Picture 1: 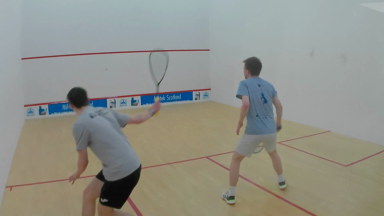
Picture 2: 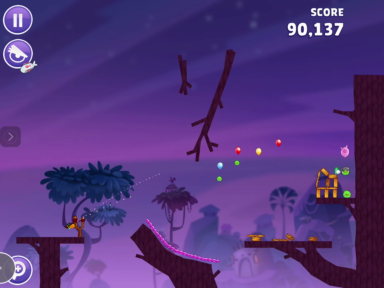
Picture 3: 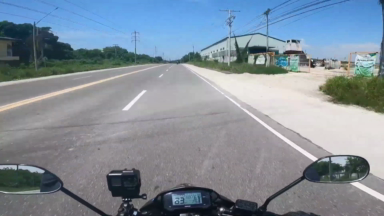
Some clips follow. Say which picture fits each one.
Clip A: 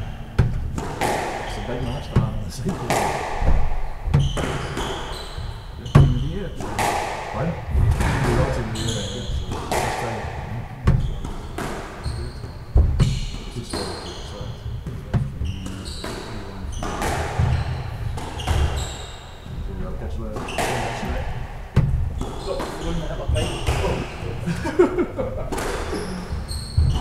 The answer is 1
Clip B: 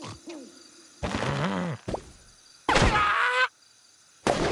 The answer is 2